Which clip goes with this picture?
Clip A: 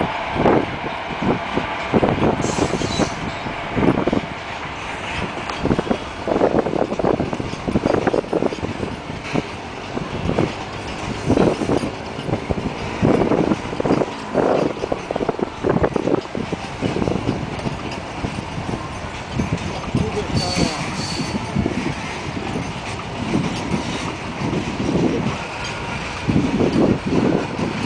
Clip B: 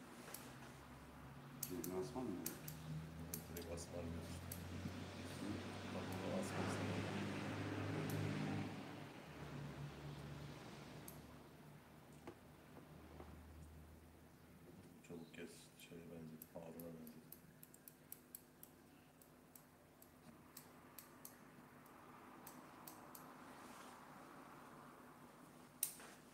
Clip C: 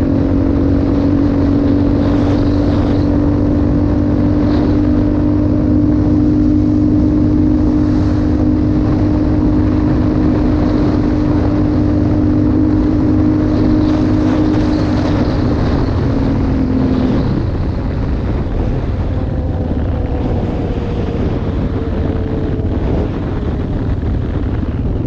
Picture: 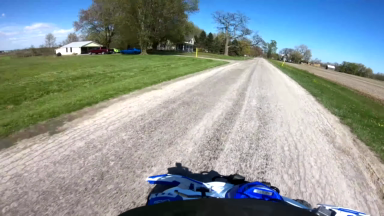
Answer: C